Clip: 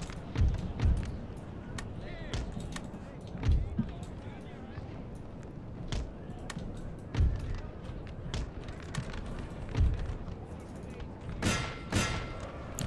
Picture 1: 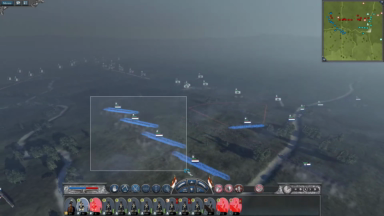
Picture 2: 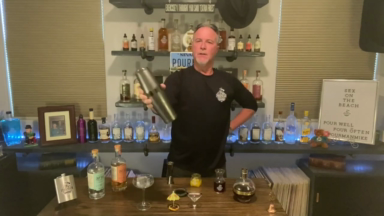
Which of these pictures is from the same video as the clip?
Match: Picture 1